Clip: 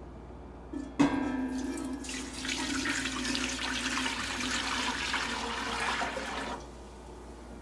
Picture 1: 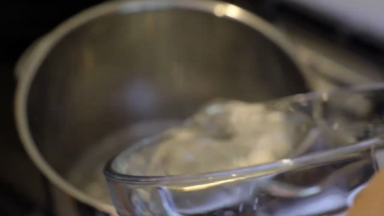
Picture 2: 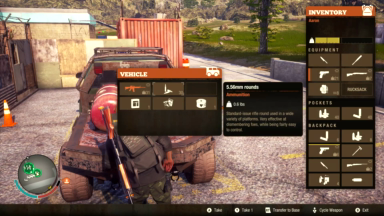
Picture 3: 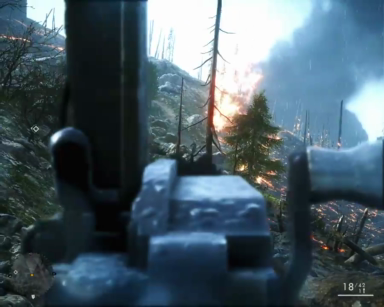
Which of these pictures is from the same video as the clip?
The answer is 1